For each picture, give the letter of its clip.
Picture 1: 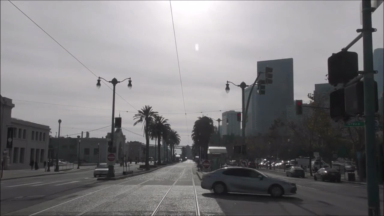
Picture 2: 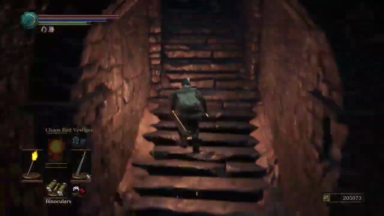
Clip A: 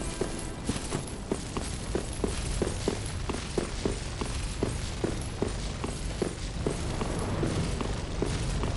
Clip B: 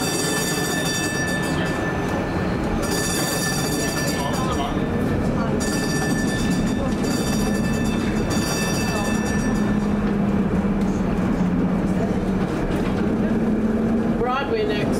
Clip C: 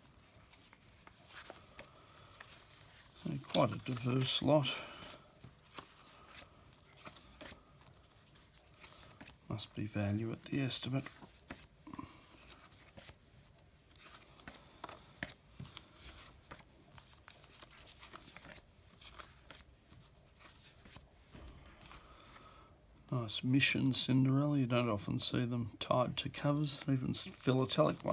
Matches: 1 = B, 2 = A